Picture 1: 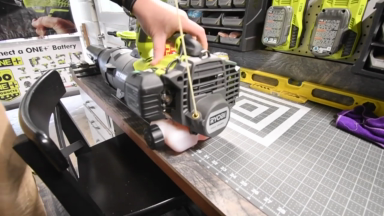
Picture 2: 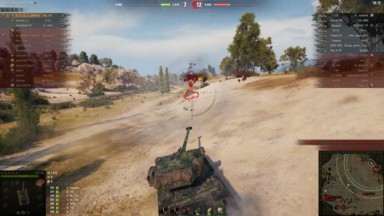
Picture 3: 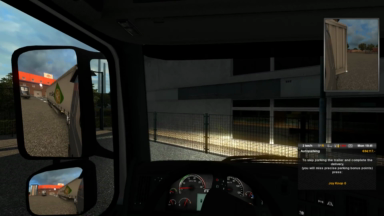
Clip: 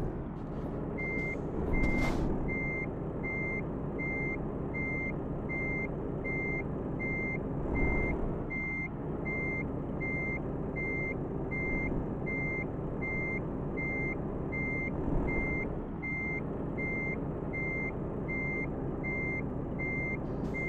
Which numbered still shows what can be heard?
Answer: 3